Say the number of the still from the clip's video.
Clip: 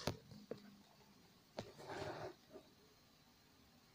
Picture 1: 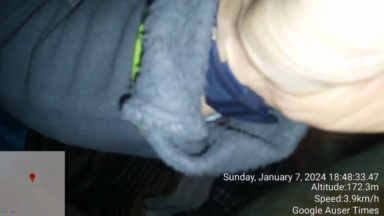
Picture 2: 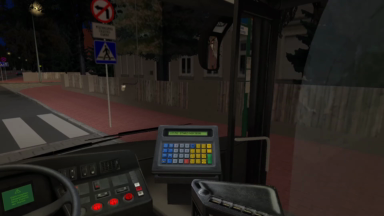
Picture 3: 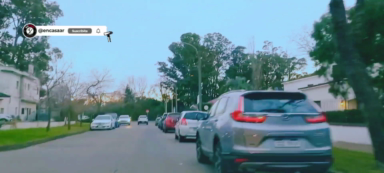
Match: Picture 1